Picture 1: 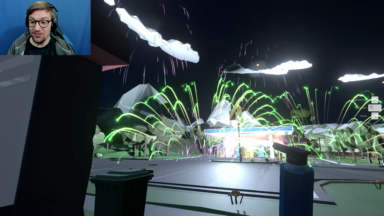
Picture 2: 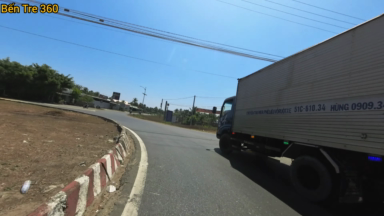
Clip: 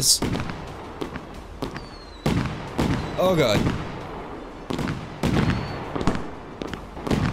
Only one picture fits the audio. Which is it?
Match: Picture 1